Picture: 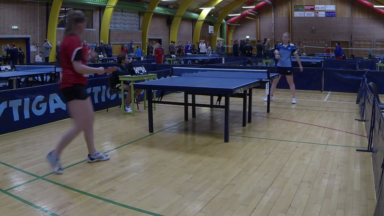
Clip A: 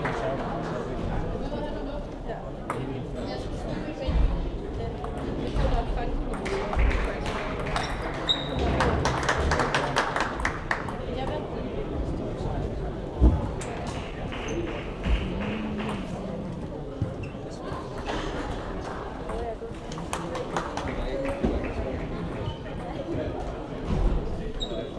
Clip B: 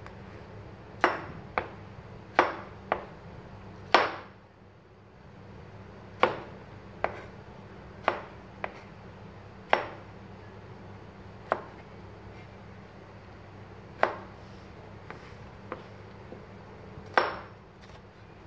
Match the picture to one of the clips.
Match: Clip A